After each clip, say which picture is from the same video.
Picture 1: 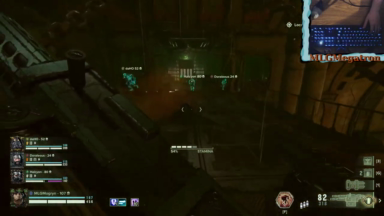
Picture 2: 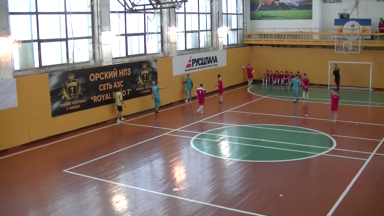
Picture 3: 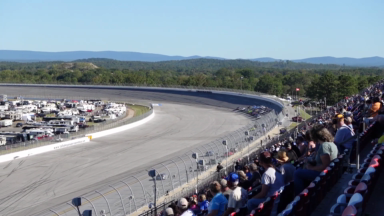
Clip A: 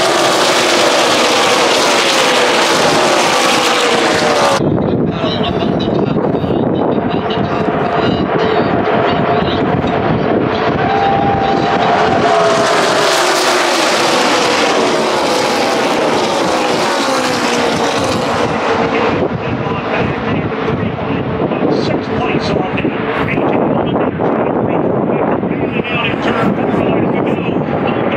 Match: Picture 3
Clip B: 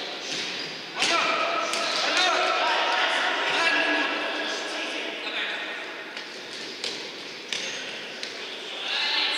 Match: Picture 2